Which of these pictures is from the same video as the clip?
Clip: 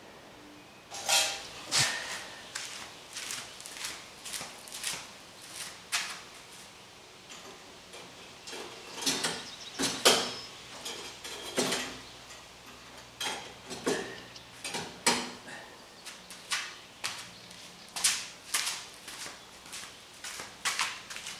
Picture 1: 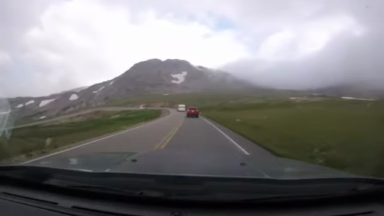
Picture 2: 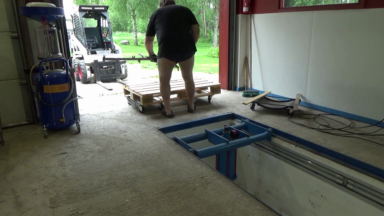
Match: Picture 2